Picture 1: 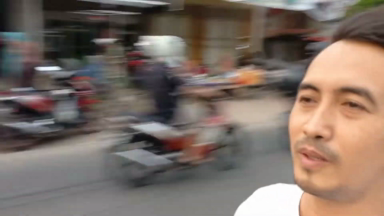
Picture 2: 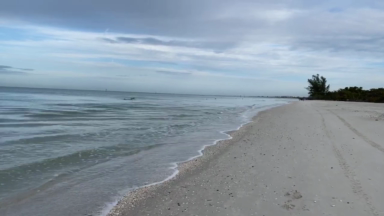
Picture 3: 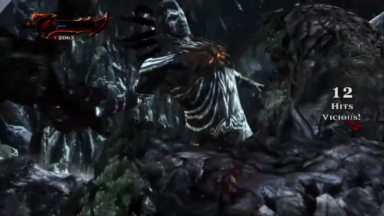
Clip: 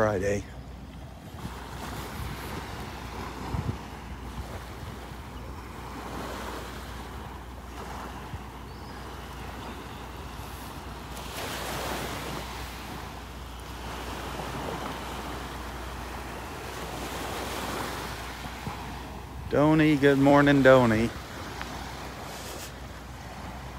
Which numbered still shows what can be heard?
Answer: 2